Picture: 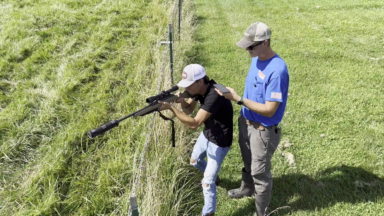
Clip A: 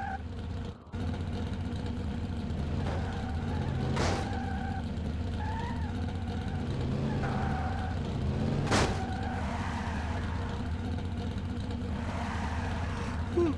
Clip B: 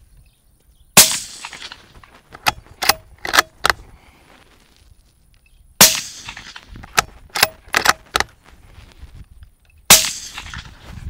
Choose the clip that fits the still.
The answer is B